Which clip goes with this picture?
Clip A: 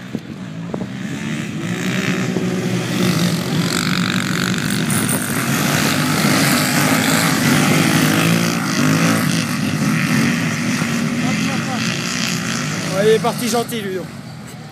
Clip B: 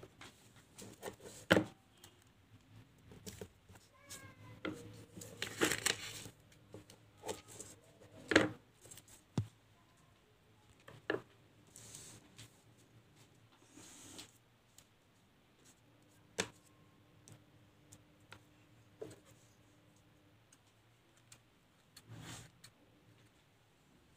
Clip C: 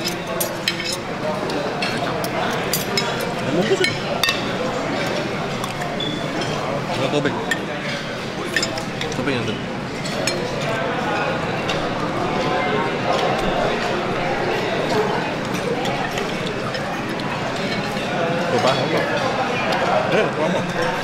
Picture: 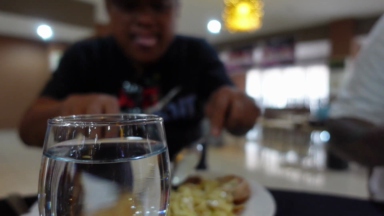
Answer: C